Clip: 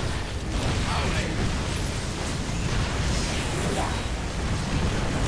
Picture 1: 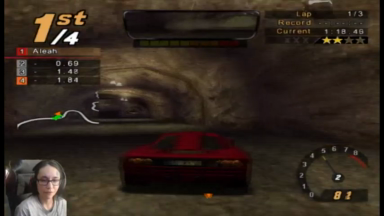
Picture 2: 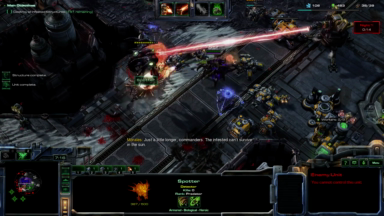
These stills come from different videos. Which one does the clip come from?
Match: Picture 2